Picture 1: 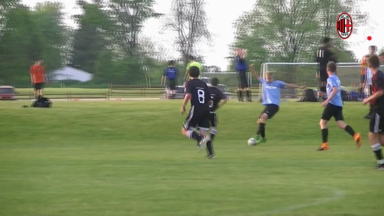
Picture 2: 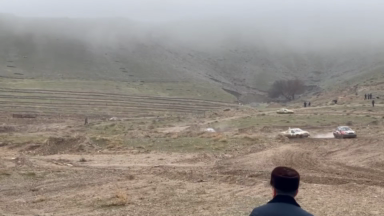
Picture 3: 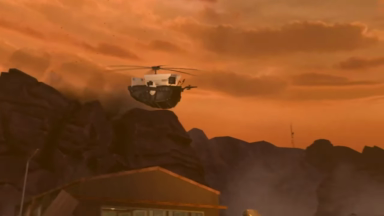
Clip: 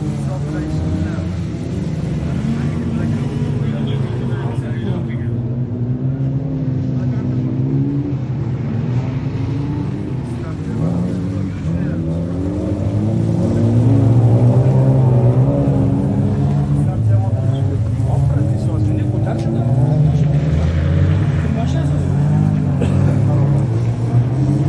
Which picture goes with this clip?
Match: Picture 2